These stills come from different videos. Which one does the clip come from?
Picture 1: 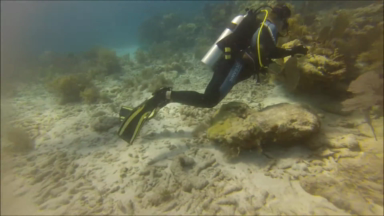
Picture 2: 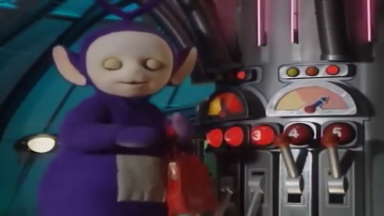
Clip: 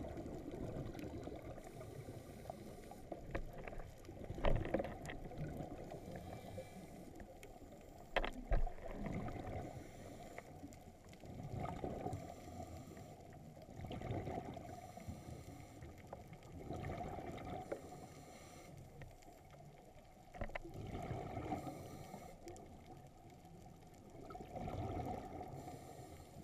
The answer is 1